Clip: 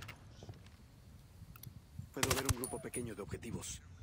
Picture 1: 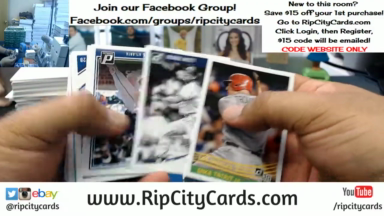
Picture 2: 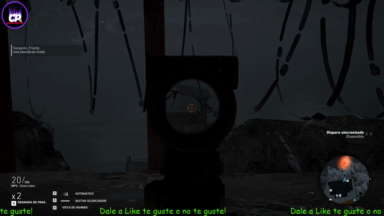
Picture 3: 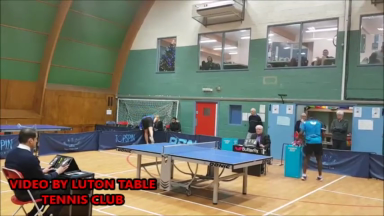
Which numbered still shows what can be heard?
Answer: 2